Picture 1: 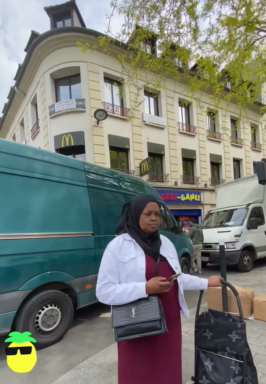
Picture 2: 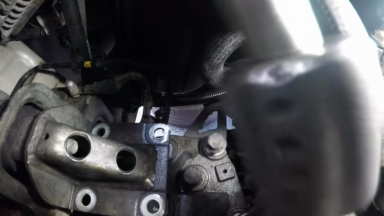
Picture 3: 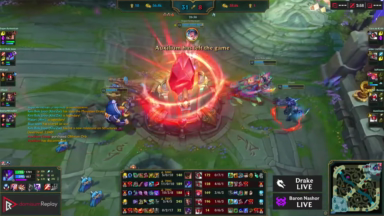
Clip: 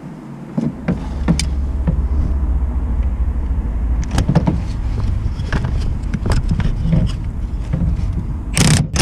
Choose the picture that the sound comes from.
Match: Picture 2